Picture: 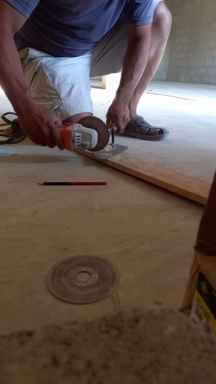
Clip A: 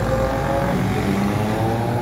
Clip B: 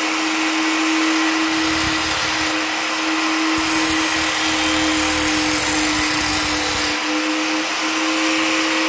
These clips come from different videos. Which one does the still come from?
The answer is B